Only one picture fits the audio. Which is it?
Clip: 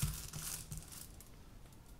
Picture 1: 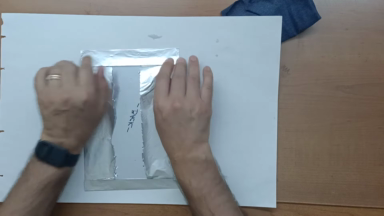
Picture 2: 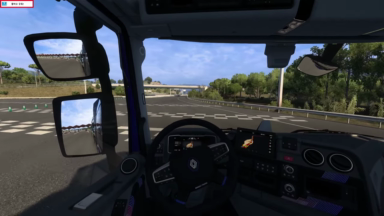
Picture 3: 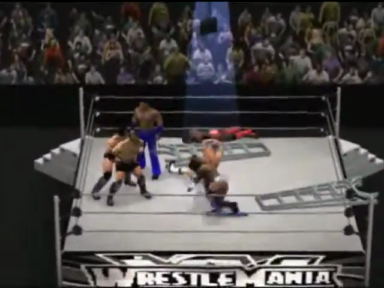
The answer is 1